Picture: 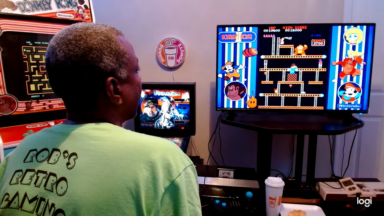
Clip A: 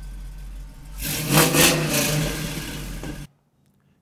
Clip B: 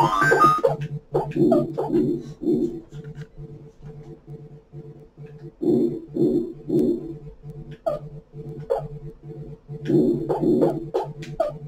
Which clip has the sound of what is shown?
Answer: B